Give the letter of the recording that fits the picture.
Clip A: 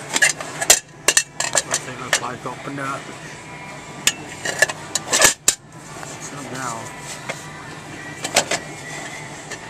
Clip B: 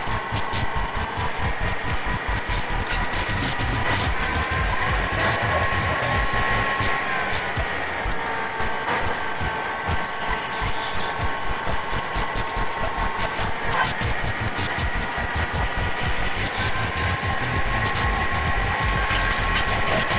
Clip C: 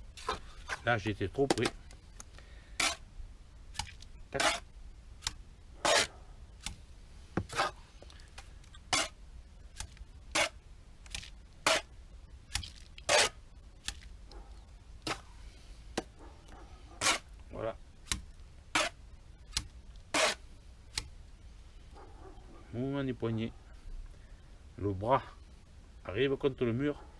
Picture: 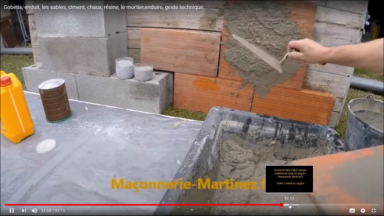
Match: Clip C